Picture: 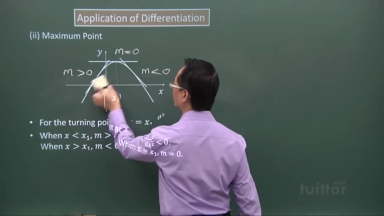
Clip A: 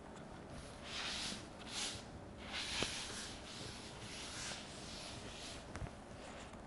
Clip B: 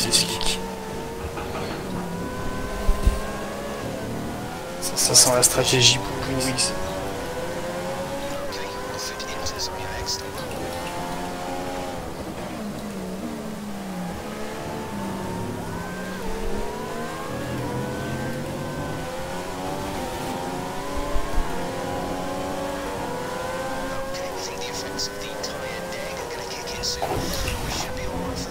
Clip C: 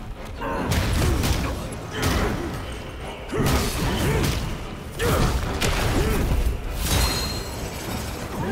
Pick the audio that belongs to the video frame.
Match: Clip A